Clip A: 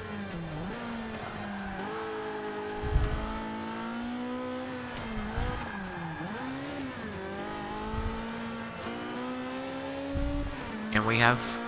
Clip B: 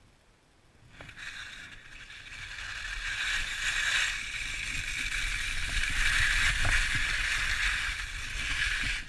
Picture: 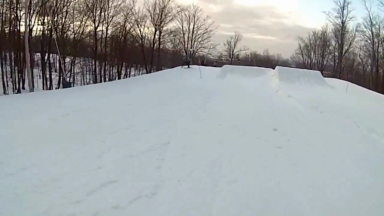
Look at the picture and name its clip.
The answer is B